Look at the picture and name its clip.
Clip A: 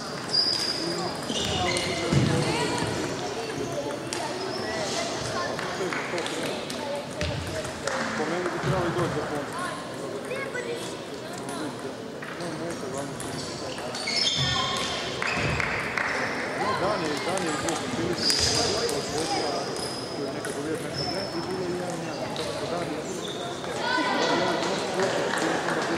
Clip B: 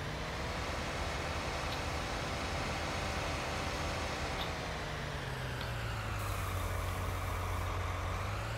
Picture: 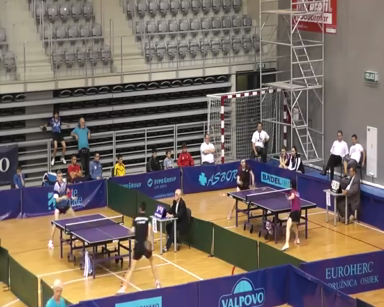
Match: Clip A